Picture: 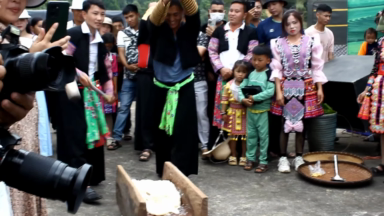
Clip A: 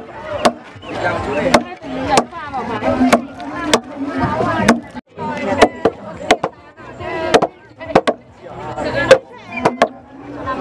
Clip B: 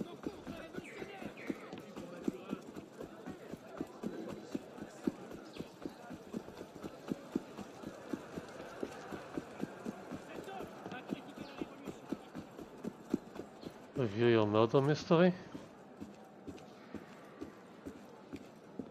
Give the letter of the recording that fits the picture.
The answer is A